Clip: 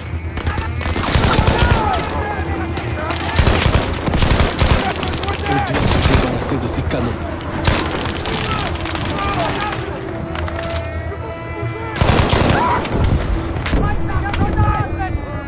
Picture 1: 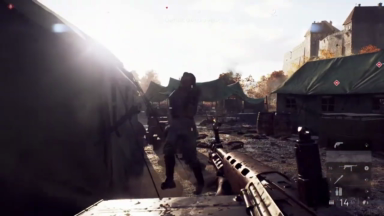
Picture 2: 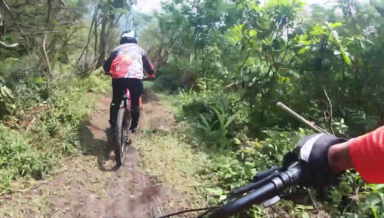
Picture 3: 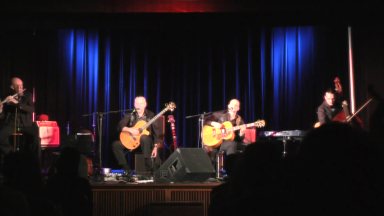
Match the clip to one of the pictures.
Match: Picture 1